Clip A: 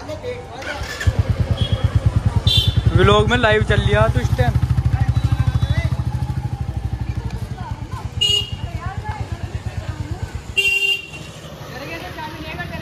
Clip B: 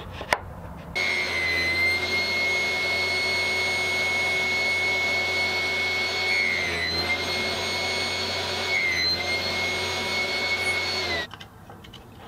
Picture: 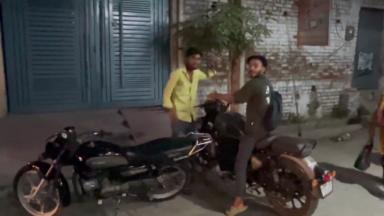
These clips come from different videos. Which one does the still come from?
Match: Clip A